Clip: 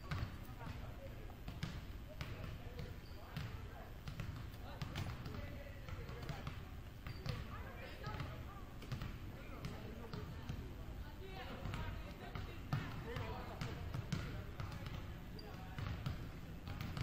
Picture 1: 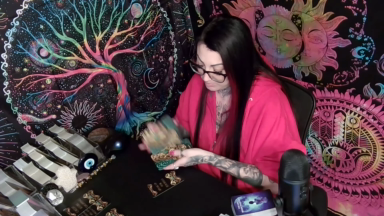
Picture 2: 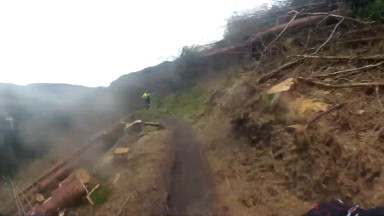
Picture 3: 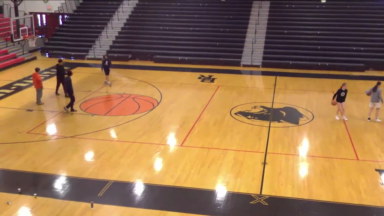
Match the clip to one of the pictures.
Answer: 3